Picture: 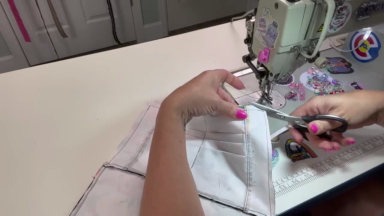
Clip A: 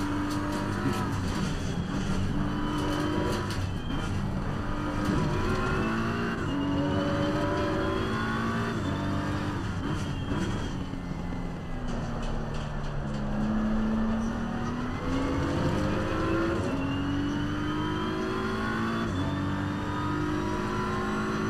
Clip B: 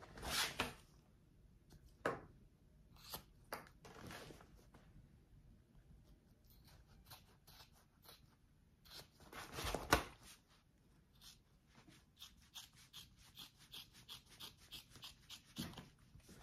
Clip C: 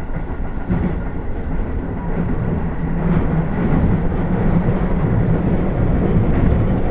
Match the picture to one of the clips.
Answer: B